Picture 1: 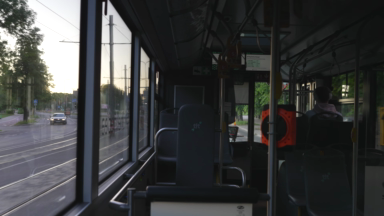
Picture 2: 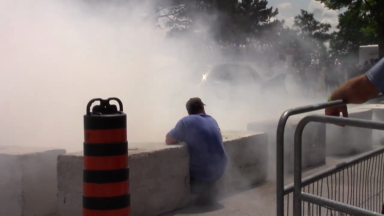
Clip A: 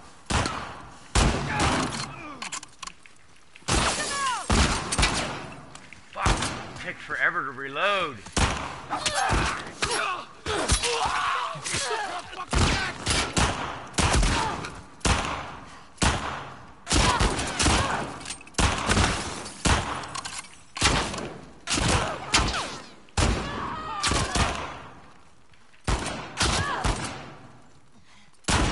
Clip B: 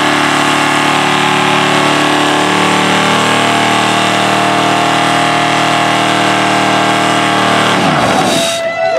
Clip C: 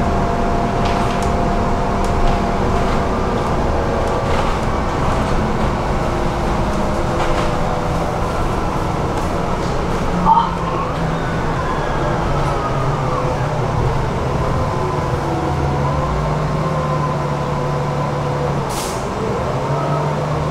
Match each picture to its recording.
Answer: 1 C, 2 B